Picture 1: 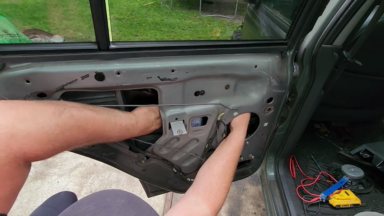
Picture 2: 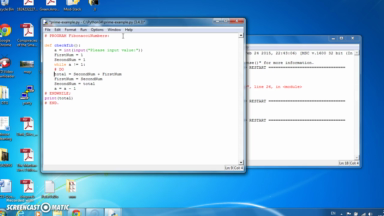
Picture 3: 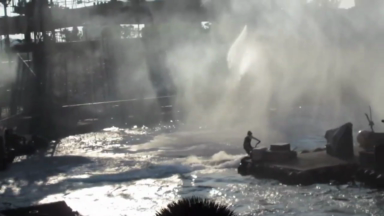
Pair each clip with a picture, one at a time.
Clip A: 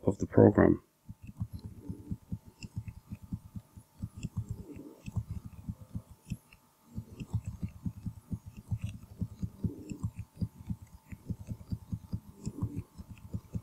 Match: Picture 2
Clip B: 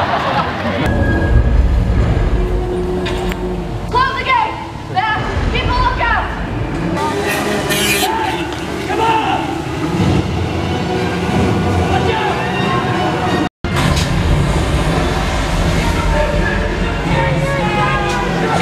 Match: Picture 3